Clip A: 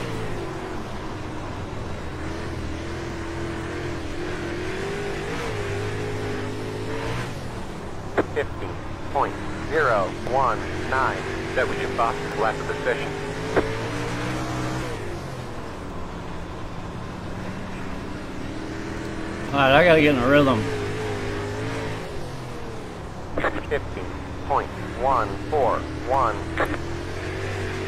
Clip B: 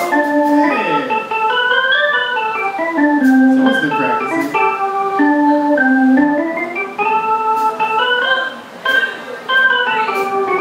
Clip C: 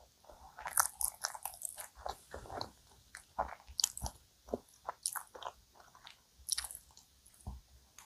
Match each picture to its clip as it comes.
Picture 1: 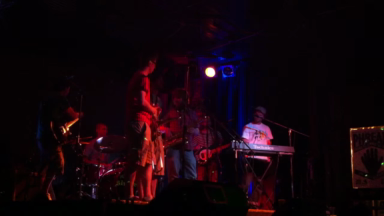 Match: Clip B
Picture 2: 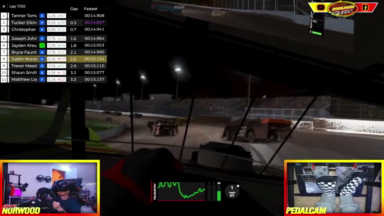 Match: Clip A